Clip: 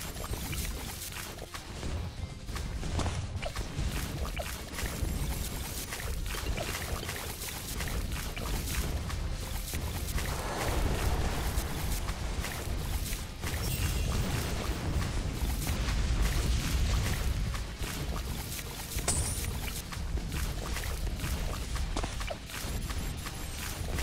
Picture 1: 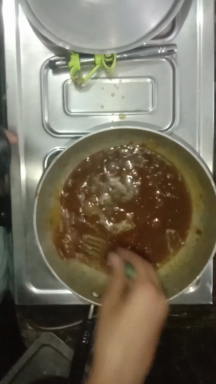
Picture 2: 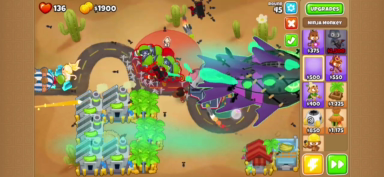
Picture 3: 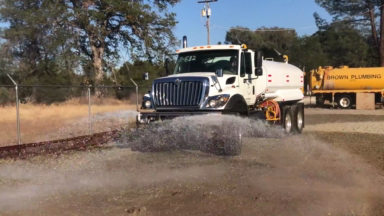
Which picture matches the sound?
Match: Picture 2